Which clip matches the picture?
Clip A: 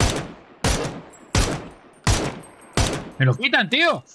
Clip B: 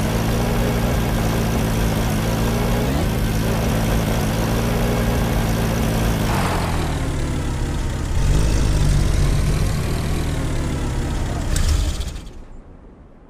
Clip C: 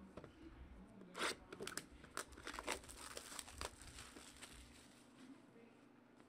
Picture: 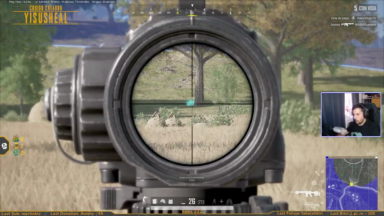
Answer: A